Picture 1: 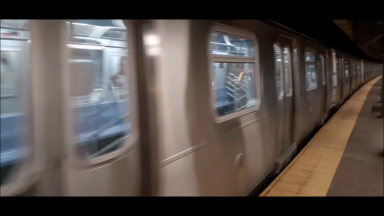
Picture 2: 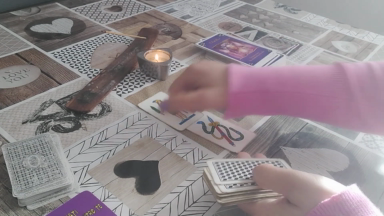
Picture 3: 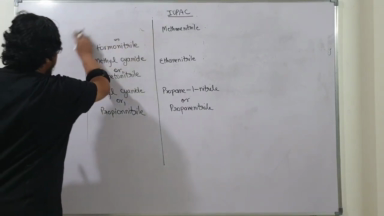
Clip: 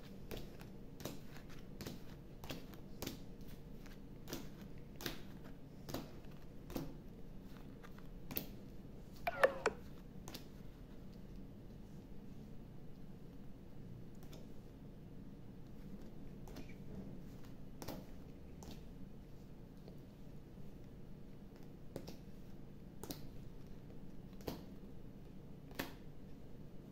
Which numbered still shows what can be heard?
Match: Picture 2